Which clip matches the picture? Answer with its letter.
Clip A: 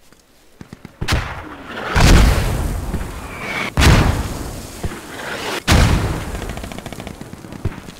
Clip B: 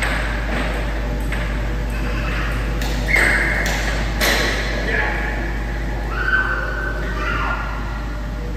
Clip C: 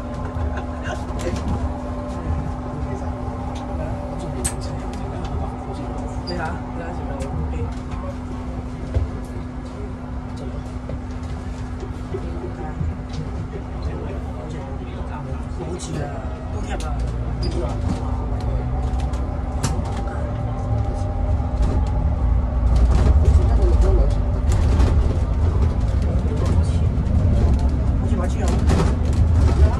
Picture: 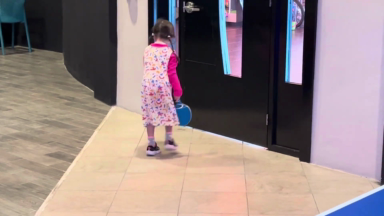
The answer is B